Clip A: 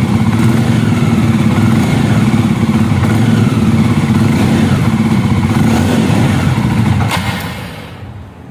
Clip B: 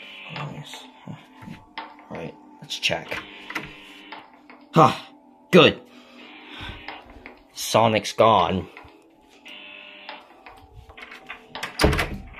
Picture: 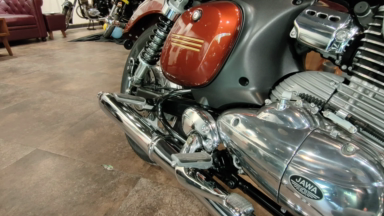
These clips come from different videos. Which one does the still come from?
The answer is A